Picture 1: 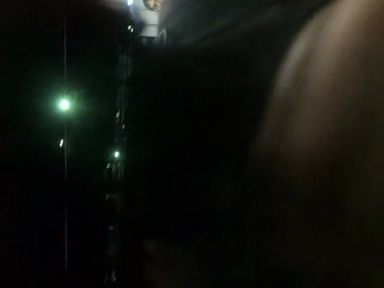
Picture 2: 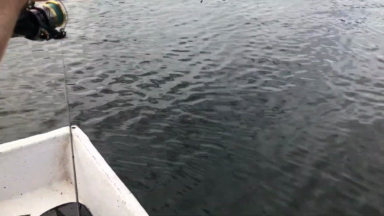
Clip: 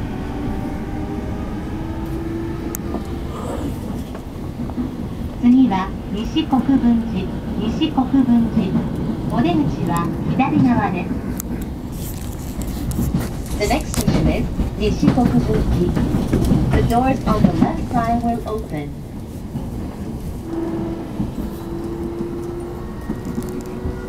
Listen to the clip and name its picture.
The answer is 1